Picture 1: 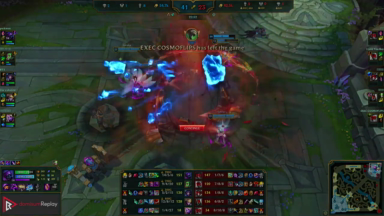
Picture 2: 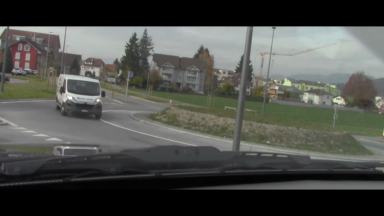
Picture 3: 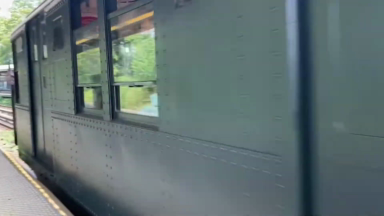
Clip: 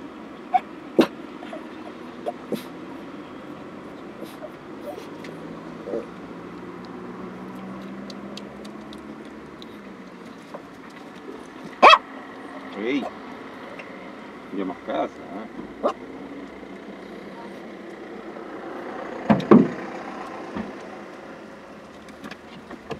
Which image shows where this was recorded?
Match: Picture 2